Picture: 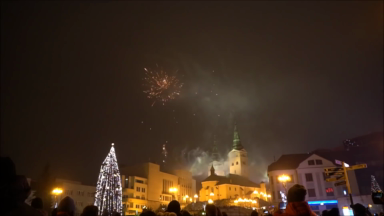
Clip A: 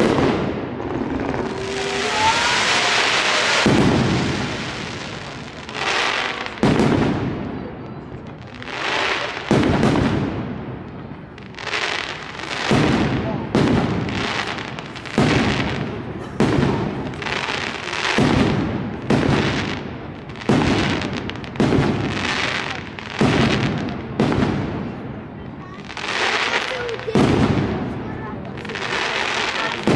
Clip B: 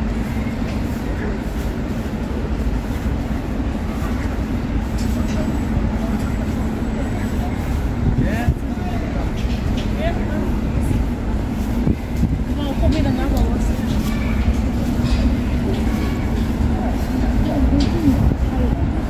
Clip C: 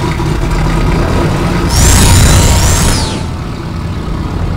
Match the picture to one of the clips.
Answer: A